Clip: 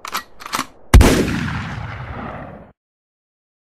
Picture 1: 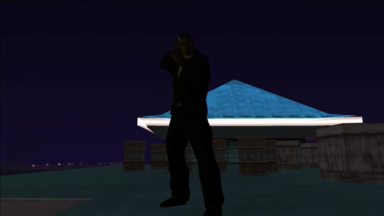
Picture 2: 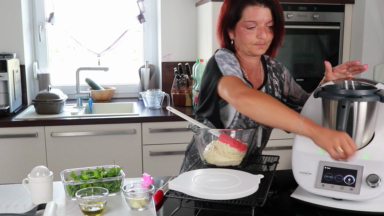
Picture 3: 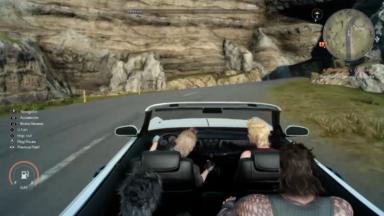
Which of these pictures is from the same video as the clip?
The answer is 1